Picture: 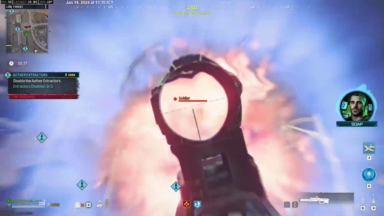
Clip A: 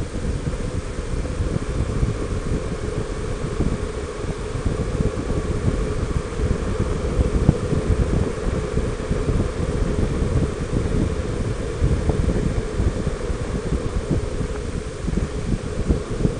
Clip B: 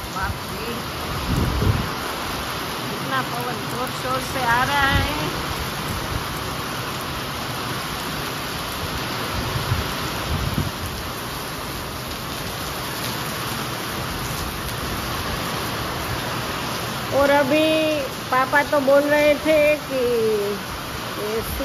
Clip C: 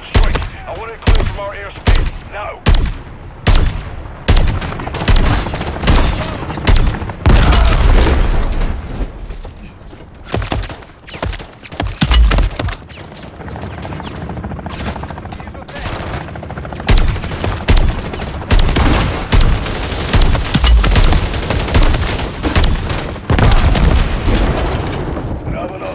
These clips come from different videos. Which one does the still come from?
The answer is C